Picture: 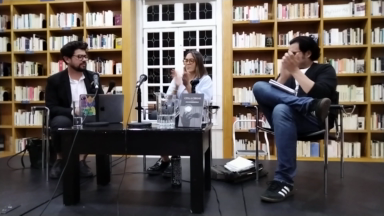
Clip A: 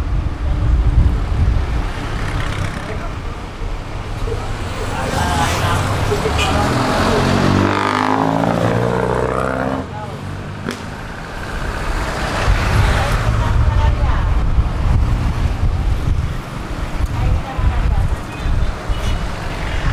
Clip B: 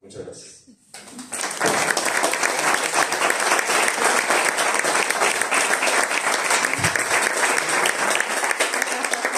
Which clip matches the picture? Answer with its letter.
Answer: B